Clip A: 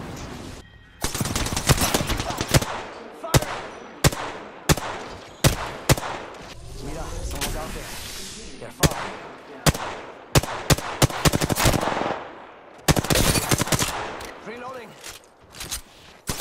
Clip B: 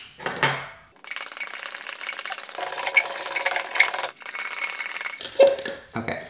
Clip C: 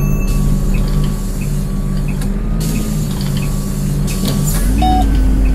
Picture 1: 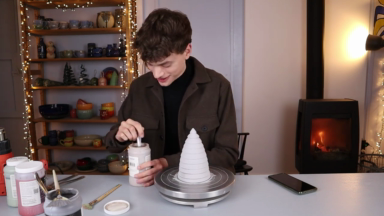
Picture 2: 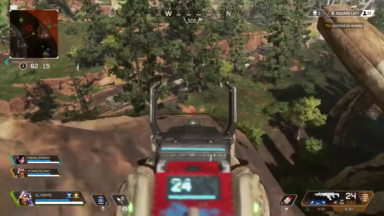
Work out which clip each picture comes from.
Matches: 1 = B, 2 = A